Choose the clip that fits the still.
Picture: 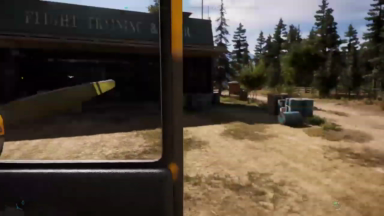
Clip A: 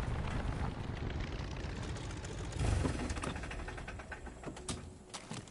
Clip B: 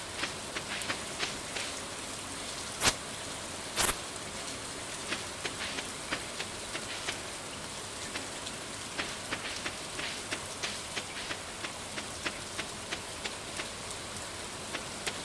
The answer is A